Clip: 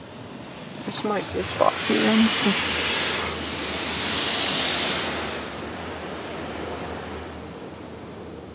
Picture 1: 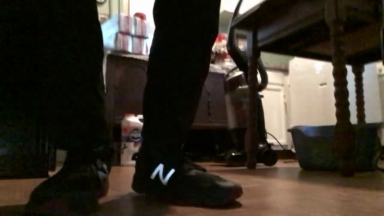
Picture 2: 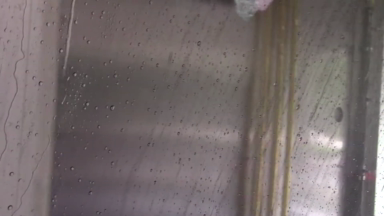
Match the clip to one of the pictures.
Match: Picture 2